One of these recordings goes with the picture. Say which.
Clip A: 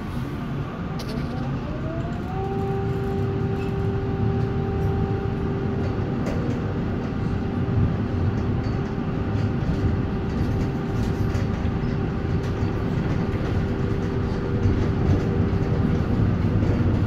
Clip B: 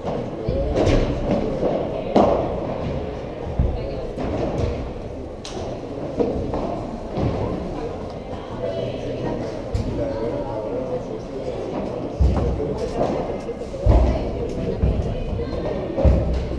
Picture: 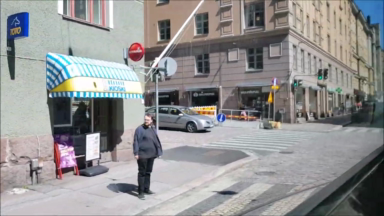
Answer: A